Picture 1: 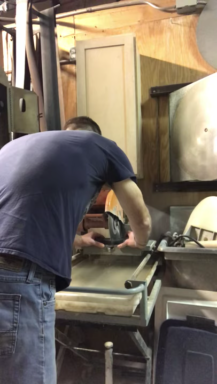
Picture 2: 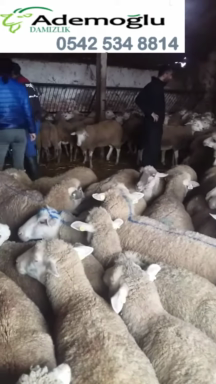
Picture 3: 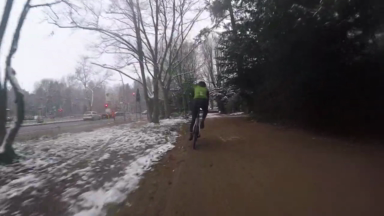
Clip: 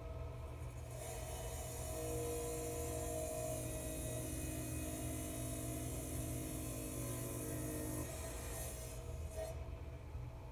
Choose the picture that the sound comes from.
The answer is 1